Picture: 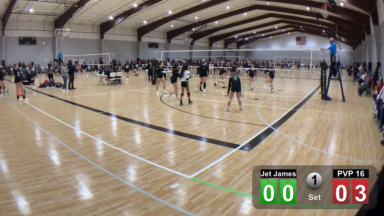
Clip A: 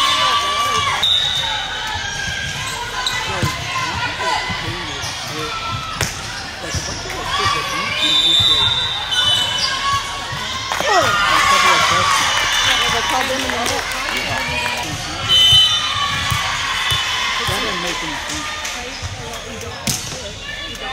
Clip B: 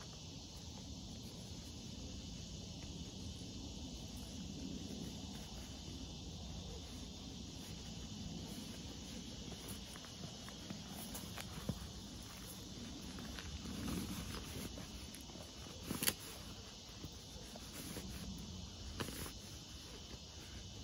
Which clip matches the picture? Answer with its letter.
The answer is A